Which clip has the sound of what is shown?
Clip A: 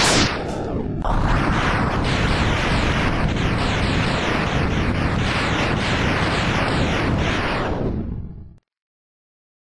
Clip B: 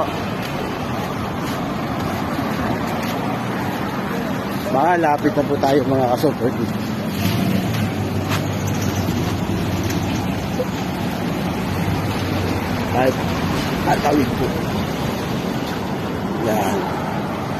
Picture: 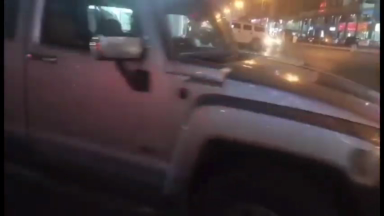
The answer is B